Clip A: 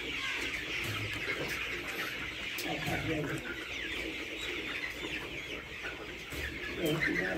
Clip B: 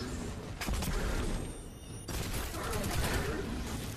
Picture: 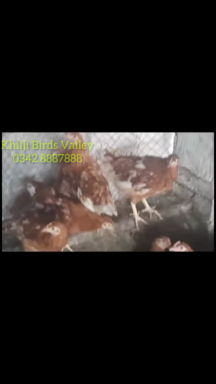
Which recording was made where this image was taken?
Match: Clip A